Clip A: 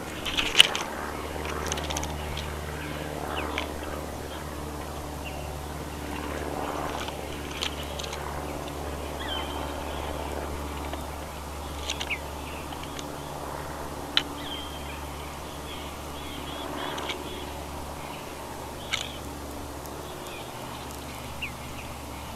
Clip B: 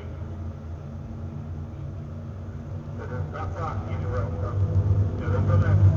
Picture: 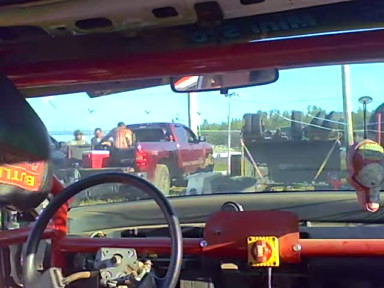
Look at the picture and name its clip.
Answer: B